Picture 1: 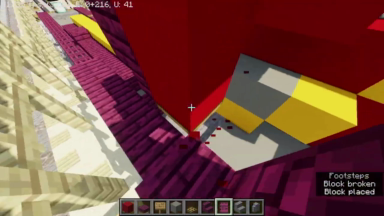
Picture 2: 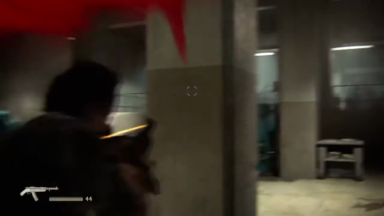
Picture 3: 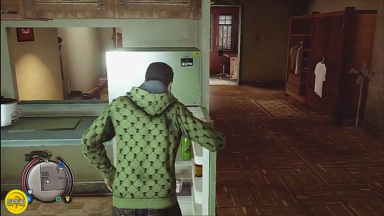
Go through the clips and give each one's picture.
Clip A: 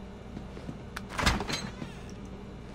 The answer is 3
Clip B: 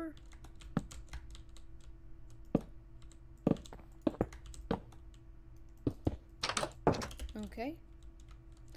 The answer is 1